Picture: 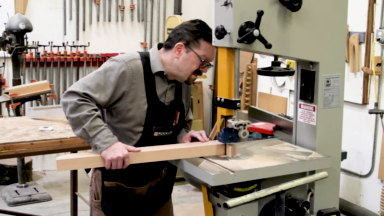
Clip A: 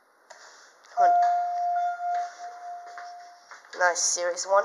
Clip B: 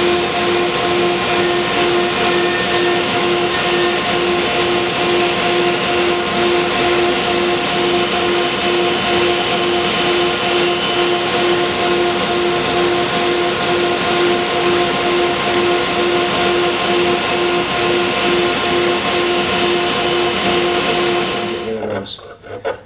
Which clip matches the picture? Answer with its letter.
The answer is B